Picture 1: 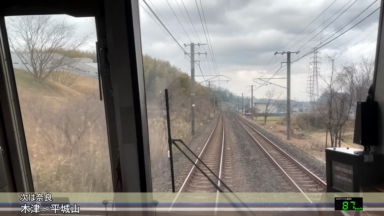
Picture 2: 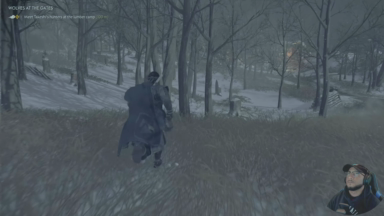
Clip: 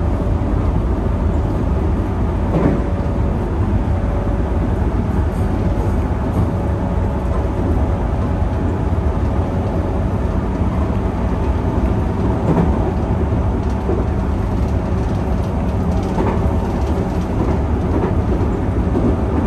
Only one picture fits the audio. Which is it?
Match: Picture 1